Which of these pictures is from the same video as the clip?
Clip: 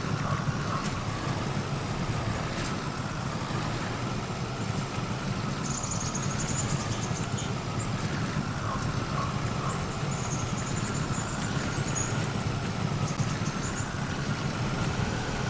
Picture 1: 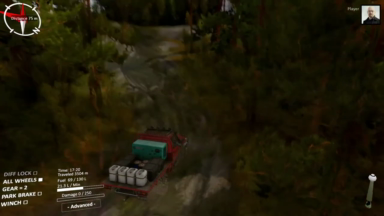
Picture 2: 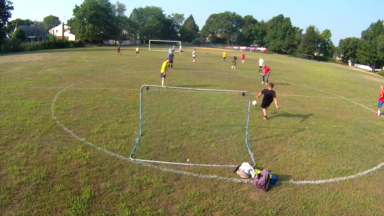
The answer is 1